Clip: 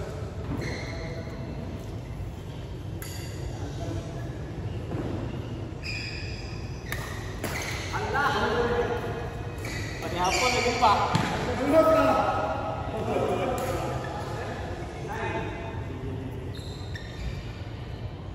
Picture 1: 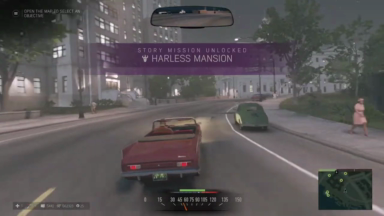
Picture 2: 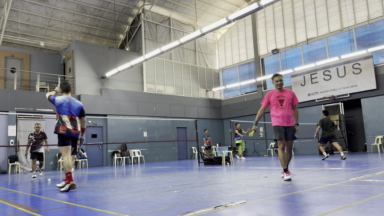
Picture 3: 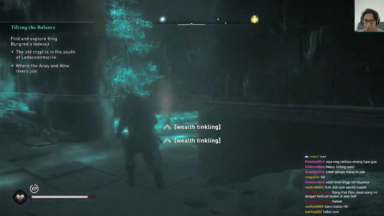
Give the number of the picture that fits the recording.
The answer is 2